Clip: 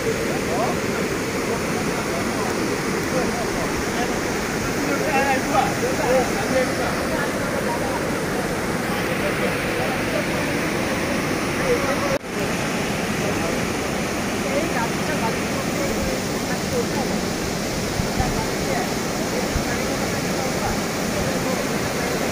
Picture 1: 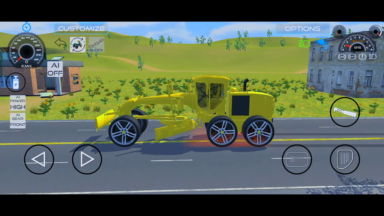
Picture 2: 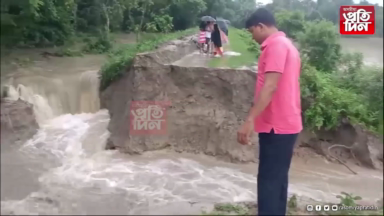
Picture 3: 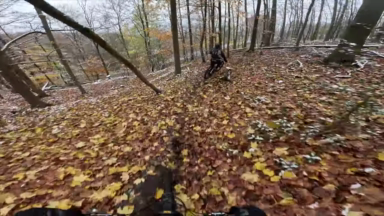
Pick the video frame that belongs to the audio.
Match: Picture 2